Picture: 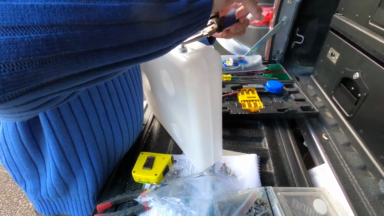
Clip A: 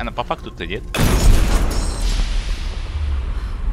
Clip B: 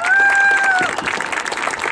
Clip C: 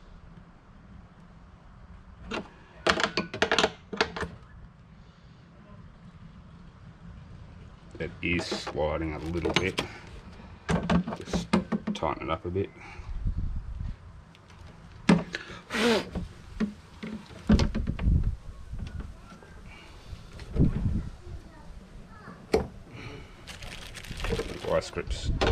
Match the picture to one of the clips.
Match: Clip C